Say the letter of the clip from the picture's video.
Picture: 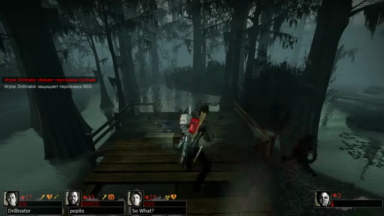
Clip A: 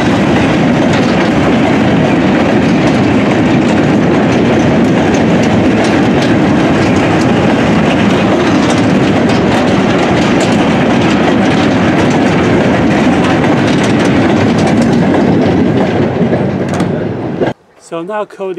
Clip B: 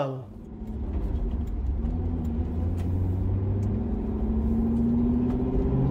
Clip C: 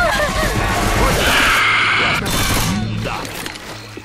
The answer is C